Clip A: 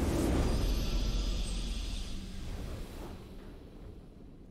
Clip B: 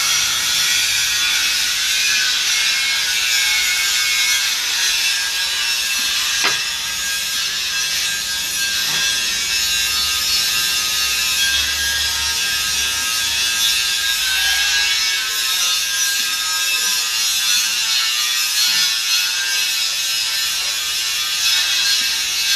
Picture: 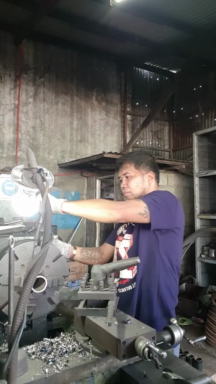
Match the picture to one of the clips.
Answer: B